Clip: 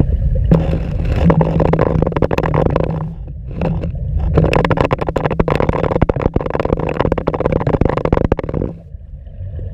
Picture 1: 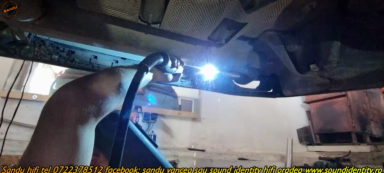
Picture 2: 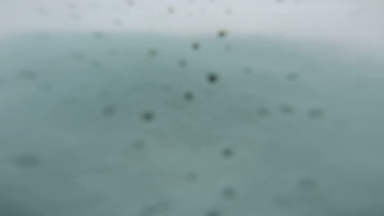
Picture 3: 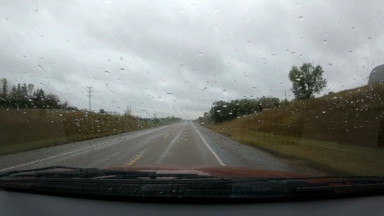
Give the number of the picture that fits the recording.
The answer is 2